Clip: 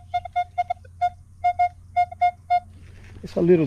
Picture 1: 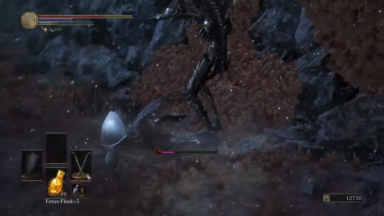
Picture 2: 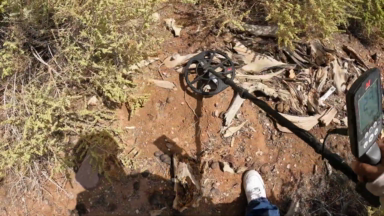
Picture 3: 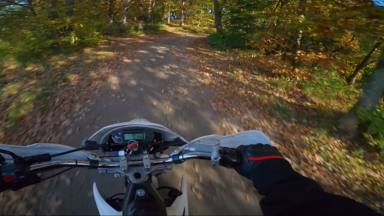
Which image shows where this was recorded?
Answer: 2